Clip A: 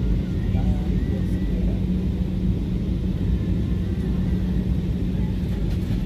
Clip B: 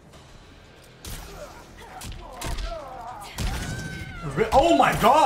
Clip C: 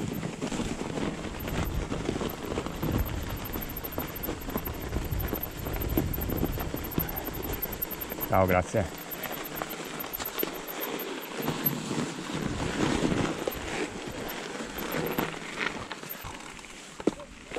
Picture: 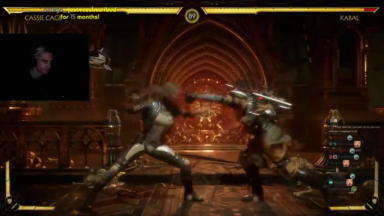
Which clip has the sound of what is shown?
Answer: B